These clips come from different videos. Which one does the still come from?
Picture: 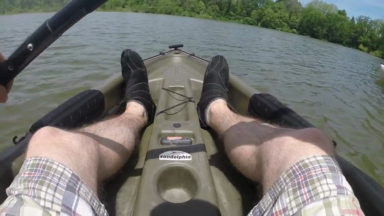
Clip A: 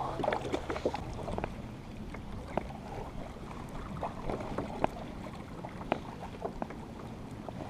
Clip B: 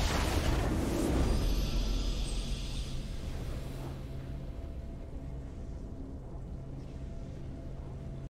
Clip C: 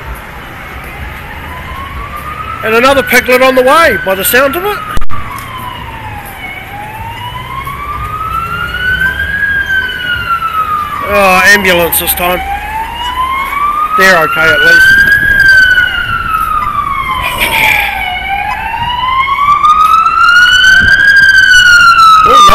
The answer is A